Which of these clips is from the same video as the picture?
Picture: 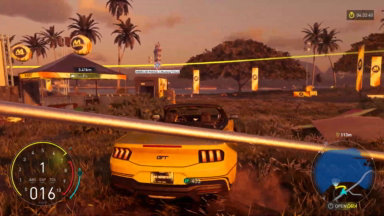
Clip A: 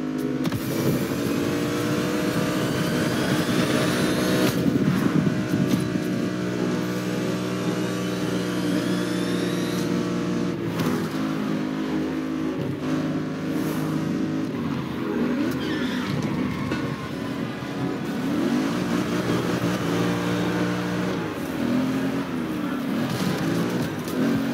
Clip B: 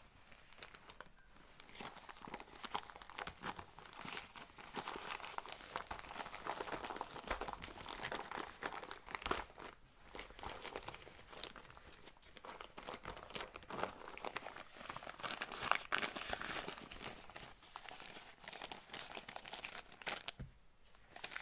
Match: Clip A